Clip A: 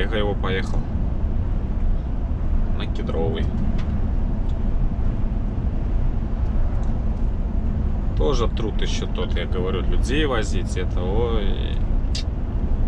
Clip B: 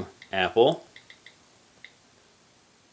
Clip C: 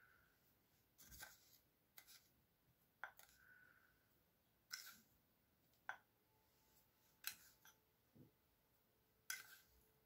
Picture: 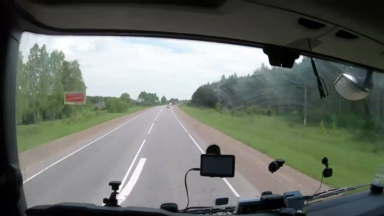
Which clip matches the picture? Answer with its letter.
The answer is A